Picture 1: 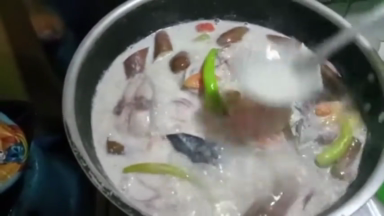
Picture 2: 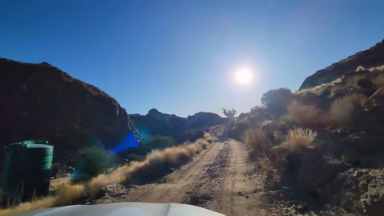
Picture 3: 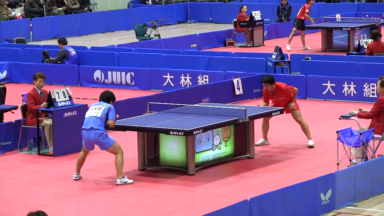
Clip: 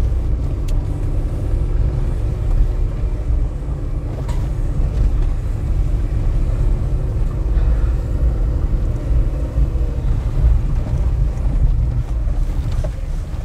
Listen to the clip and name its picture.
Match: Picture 2